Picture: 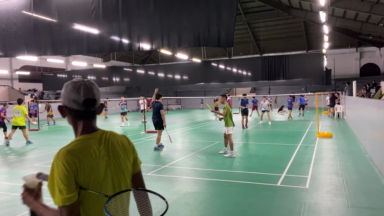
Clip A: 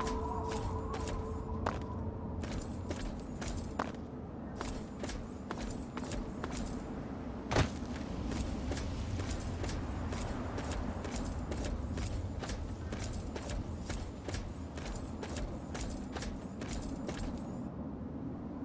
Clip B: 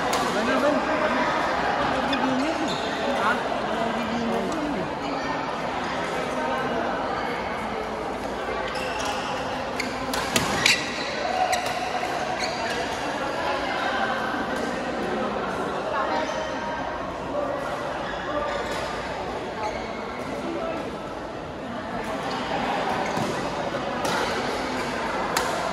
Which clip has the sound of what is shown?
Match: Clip B